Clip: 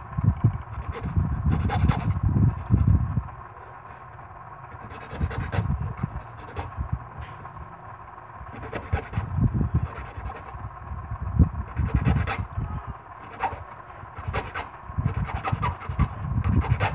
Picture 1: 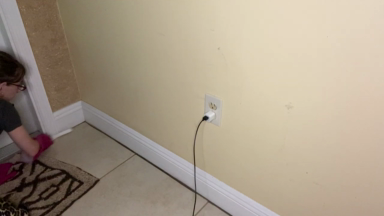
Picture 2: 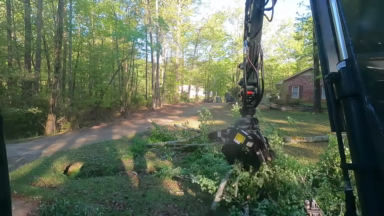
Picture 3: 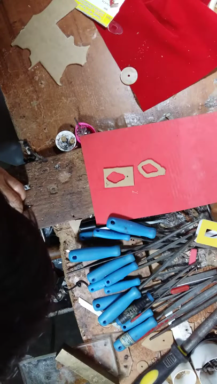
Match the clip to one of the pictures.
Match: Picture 3